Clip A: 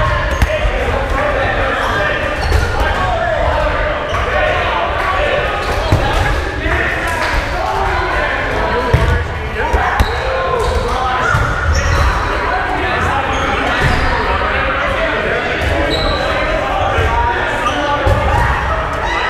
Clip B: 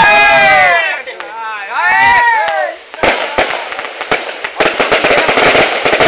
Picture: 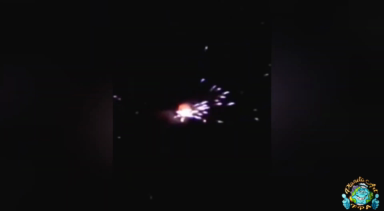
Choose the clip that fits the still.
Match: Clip B